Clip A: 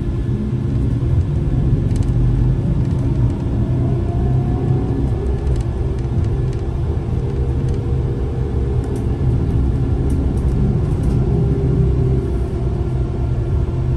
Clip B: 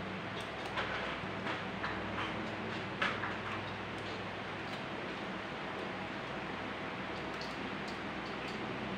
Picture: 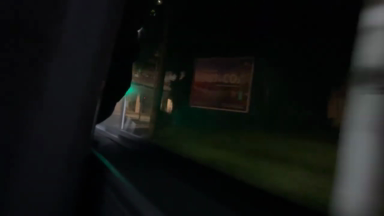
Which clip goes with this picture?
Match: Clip A